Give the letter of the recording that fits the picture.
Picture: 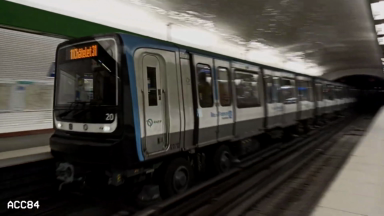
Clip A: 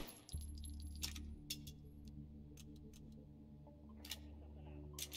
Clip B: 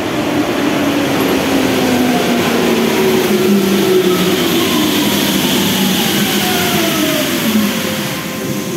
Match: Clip B